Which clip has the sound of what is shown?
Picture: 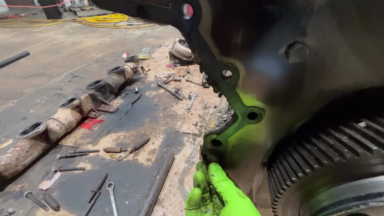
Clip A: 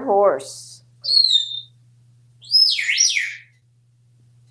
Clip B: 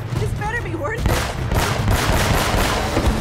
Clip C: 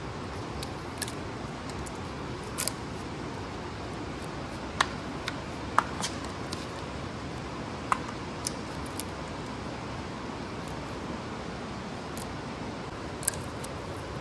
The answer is C